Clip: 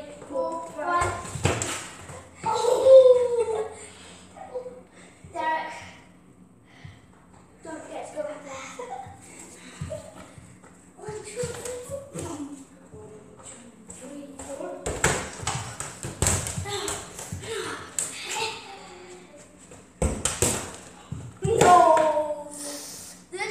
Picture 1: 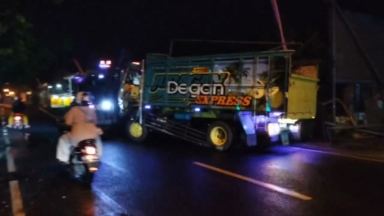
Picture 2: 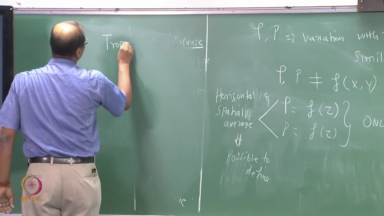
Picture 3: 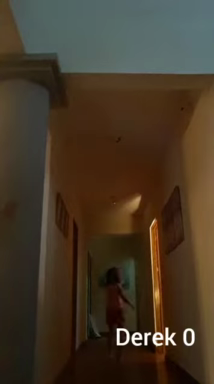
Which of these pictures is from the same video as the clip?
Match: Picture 3